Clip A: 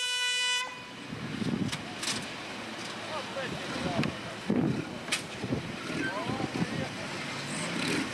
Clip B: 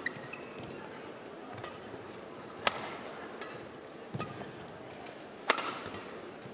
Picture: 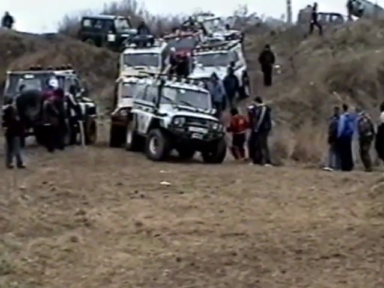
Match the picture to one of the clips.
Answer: A